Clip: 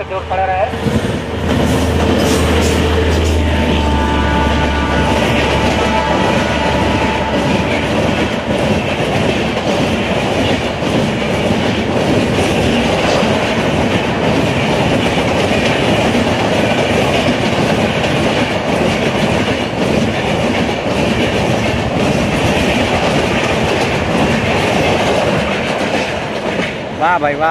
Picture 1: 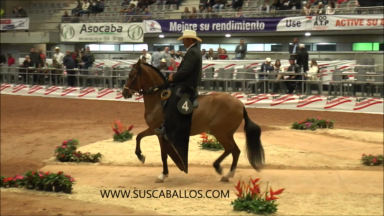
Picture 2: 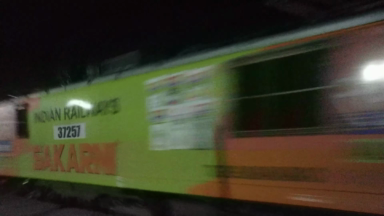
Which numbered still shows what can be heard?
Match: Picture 2